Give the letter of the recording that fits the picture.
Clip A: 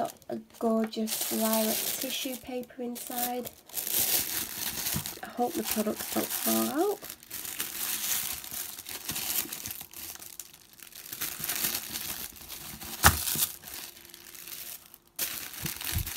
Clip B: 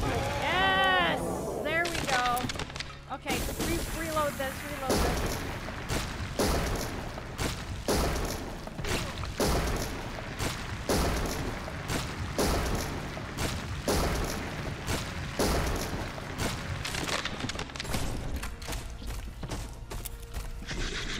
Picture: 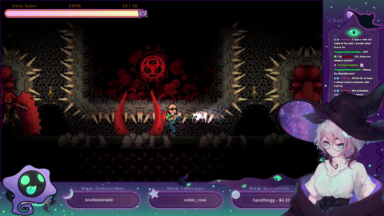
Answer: B